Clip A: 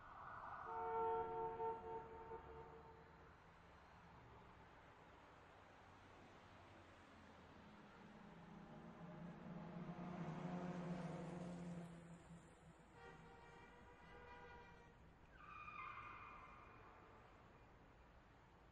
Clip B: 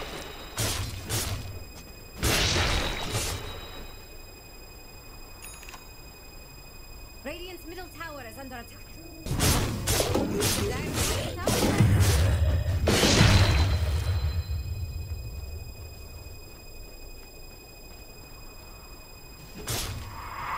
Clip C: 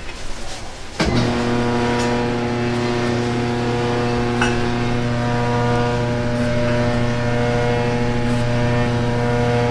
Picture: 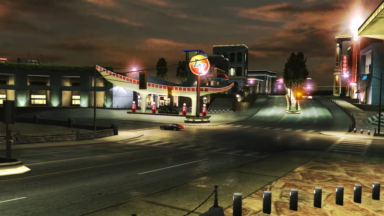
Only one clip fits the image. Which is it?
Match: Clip A